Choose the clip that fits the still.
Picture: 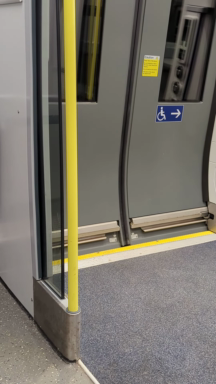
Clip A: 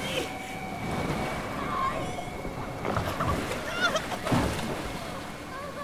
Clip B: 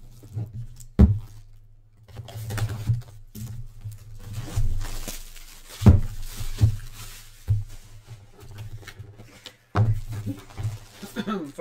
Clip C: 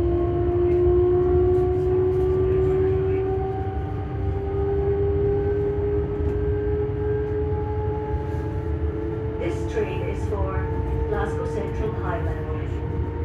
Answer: C